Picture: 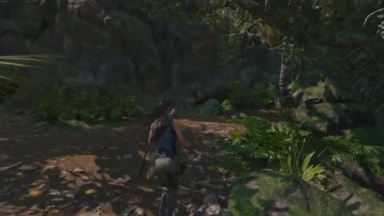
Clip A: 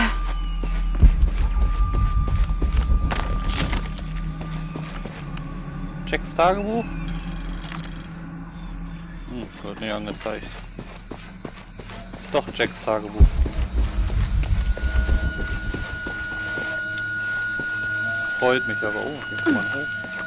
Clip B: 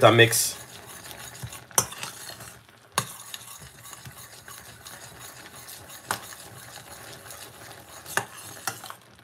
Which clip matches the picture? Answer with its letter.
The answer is A